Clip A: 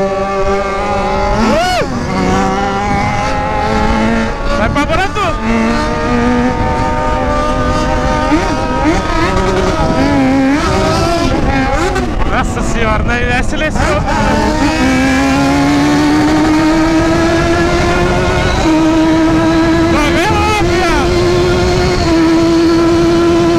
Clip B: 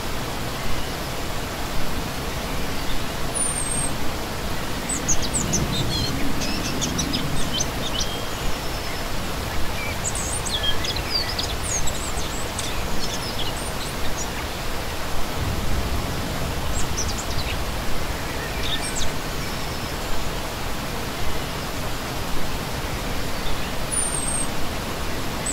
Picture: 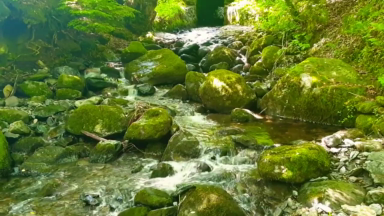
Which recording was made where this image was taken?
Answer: B